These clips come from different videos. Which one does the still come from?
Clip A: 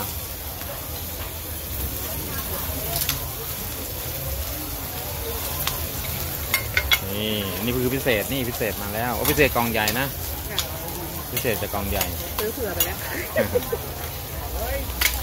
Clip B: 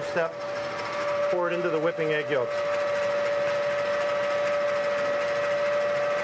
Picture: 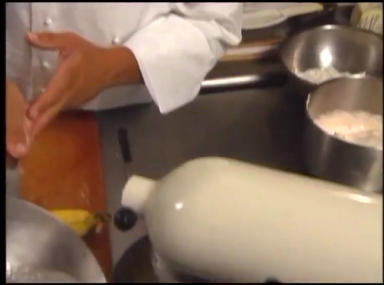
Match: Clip B